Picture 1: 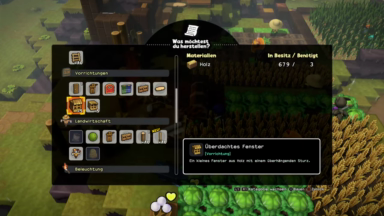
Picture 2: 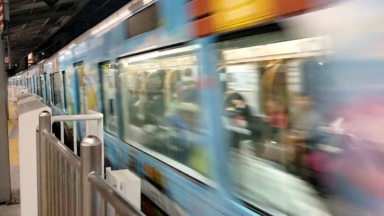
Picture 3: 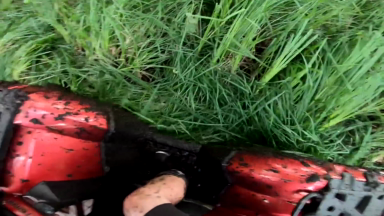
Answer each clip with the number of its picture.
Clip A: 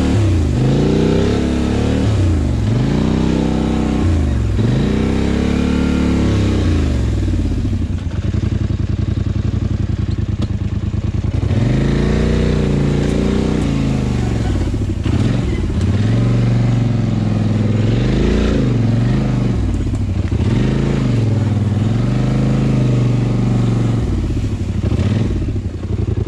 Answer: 3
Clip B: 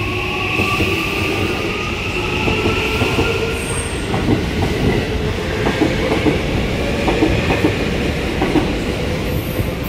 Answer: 2